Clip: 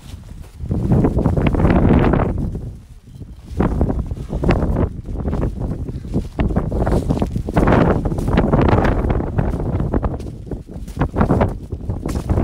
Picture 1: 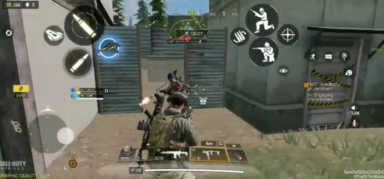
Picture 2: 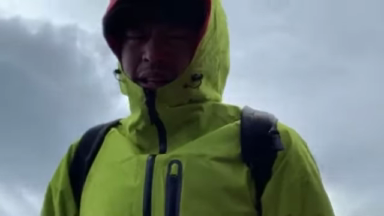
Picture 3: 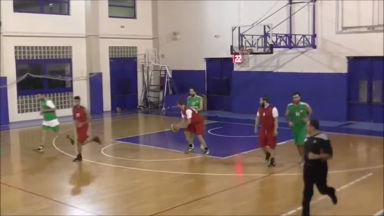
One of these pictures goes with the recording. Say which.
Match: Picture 2